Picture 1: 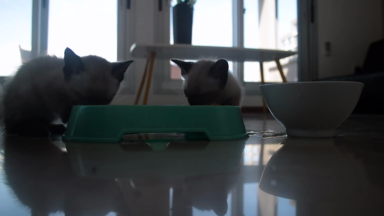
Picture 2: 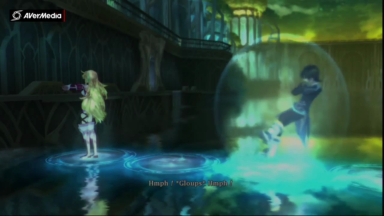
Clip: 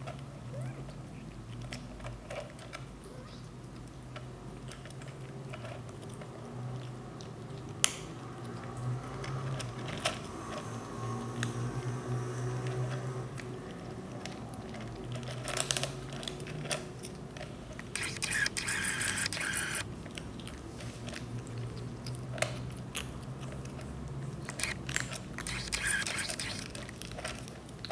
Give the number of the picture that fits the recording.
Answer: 1